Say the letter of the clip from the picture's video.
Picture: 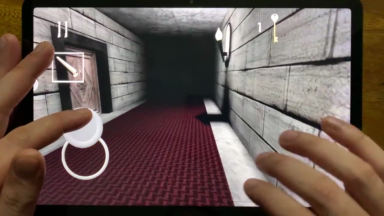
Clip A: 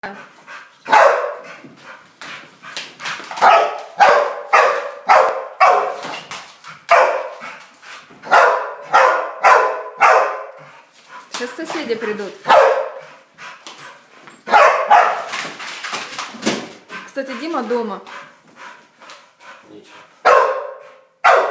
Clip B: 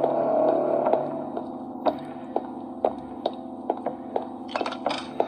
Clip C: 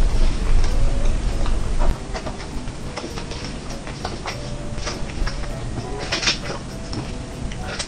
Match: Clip B